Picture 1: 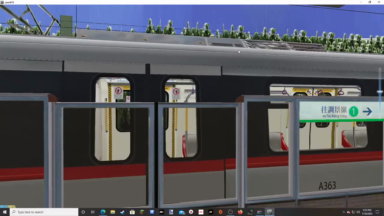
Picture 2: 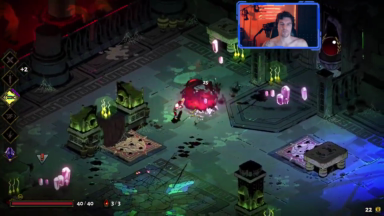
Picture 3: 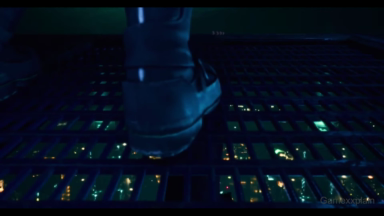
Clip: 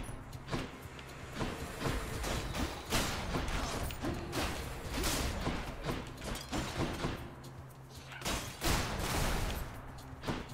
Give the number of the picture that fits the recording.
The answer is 2